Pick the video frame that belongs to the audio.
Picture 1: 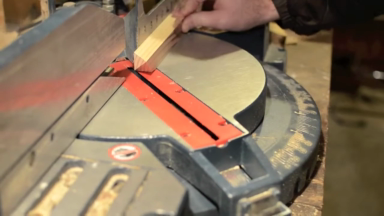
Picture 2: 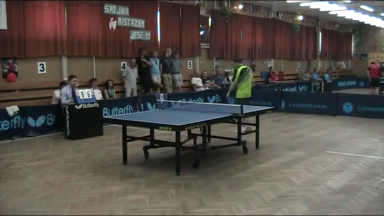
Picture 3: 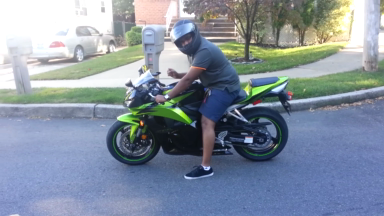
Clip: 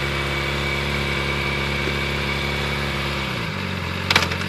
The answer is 3